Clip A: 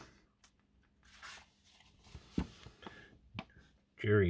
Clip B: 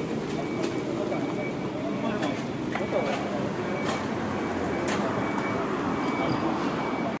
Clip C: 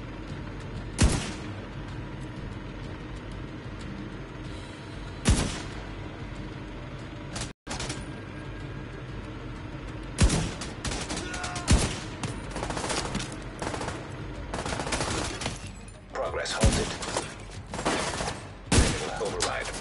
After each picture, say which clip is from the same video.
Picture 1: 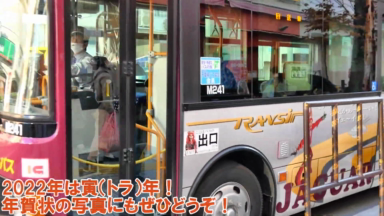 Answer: B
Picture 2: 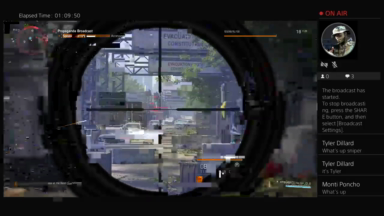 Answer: C